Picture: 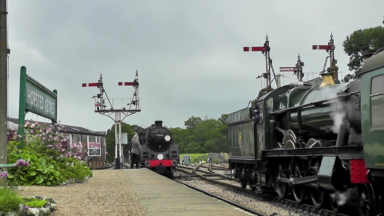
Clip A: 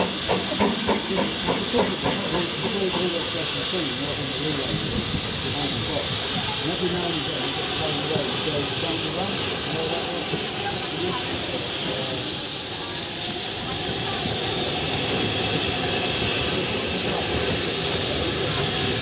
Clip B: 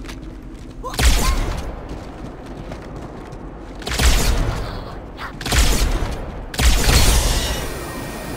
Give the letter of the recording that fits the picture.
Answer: A